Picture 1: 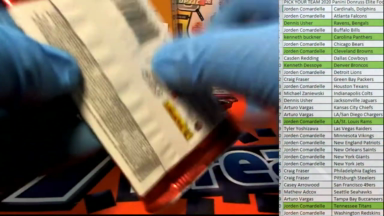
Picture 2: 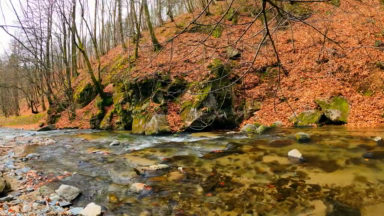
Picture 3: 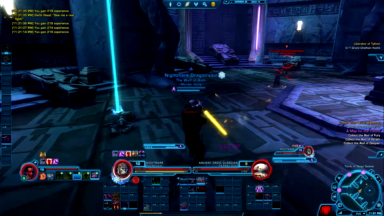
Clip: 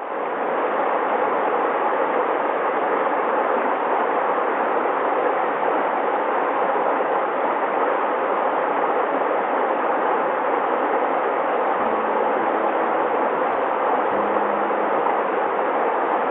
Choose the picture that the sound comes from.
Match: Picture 2